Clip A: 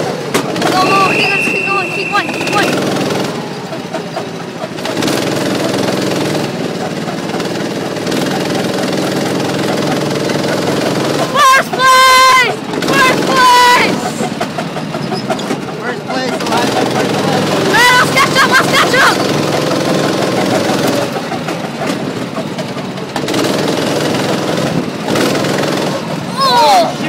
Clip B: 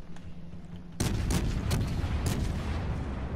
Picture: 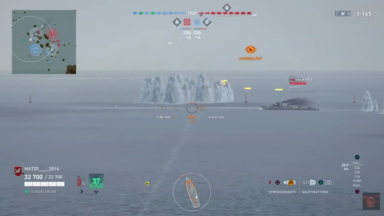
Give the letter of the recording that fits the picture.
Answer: B